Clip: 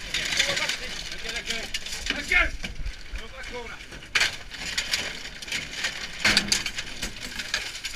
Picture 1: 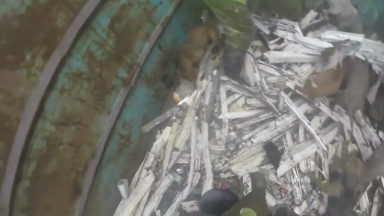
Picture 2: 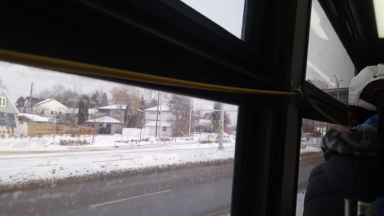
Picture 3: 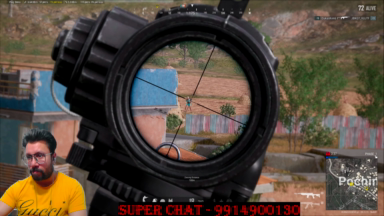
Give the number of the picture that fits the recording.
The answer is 1